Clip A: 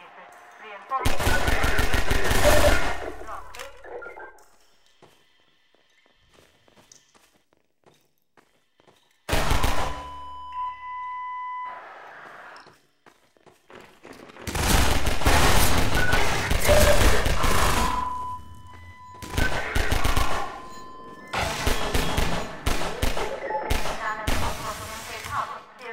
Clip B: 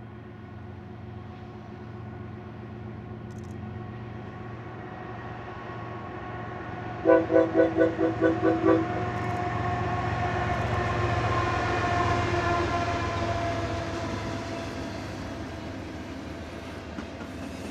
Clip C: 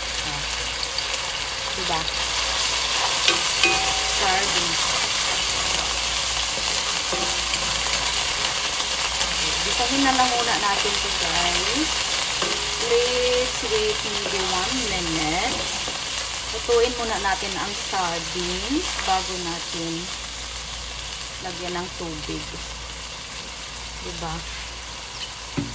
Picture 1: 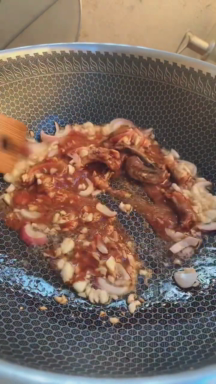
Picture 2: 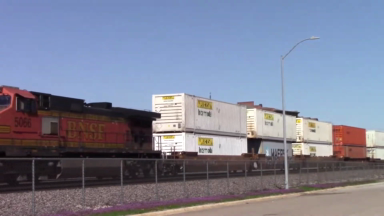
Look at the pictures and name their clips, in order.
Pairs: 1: C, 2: B